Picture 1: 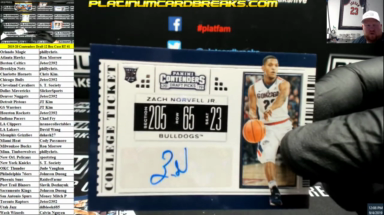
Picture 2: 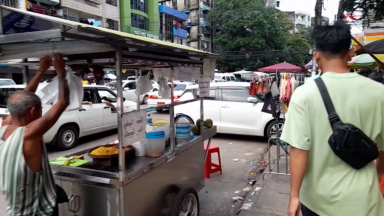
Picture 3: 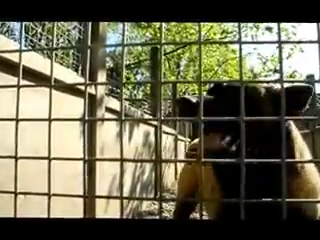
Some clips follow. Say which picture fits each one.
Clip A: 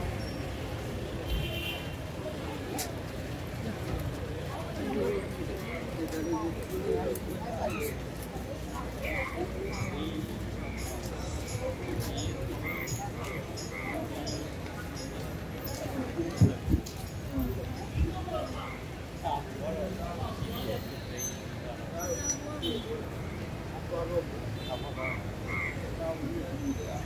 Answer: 2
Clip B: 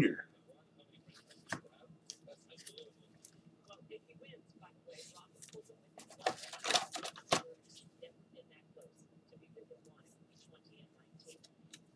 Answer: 1